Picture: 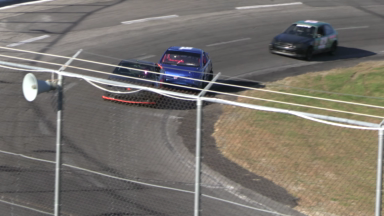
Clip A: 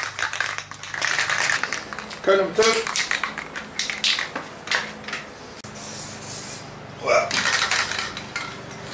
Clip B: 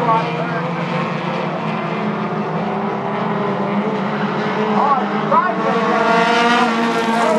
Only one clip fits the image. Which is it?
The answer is B